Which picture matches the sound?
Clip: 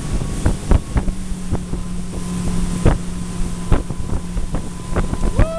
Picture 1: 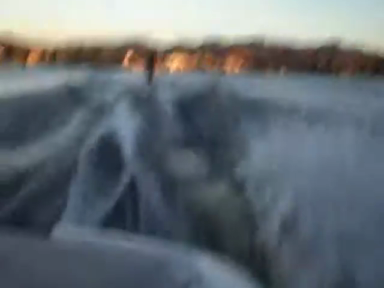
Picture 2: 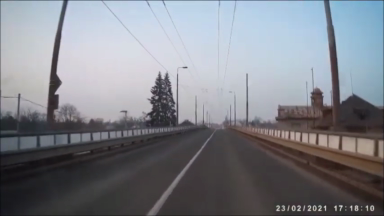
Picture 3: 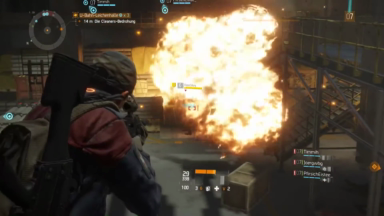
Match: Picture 1